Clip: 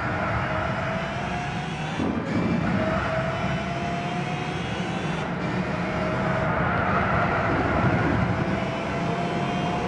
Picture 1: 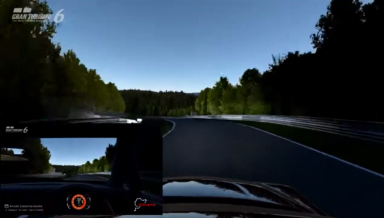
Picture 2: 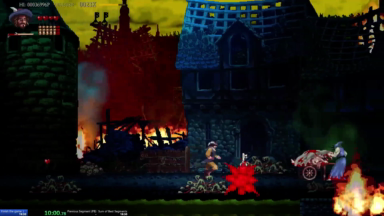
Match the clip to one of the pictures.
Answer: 1